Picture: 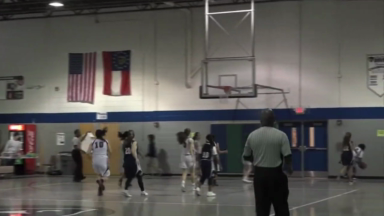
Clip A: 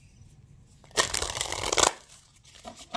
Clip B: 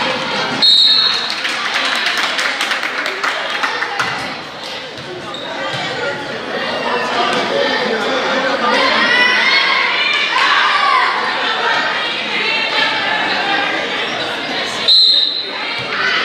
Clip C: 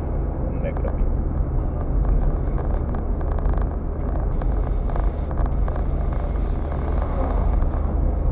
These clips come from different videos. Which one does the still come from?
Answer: B